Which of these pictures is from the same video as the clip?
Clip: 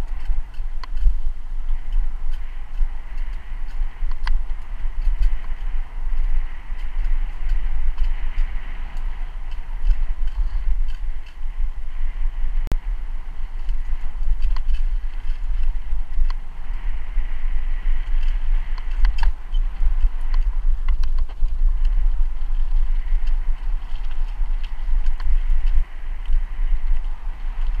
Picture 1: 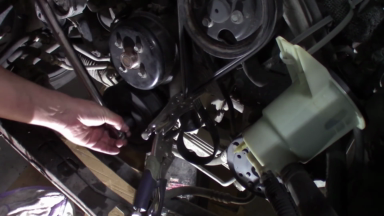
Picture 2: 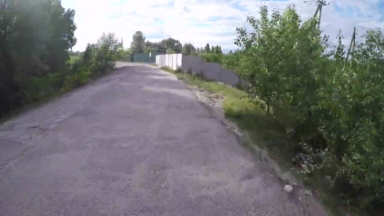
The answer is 2